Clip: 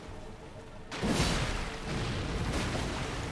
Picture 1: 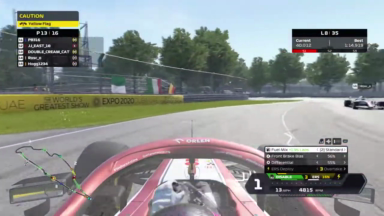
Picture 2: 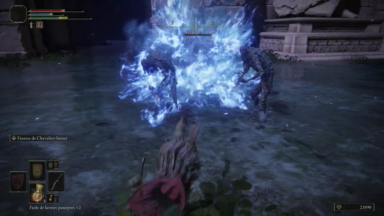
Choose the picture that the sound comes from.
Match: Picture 2